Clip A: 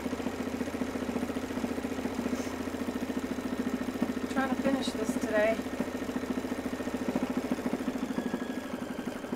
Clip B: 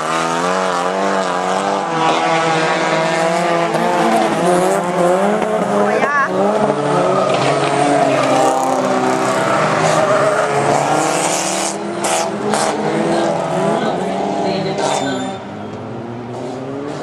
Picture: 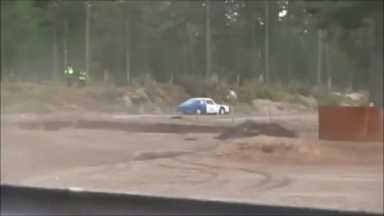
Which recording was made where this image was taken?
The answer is B